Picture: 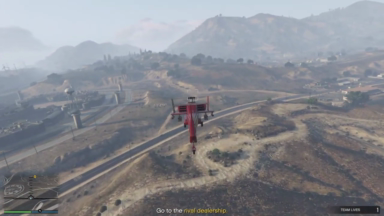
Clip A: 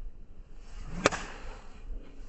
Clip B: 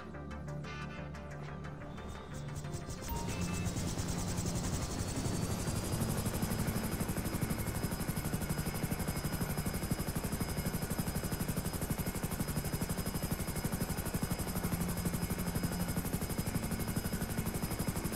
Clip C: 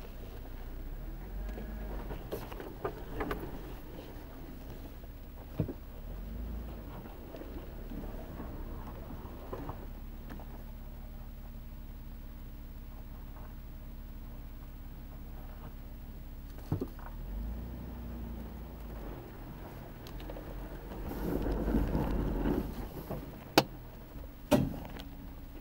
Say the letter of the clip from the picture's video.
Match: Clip B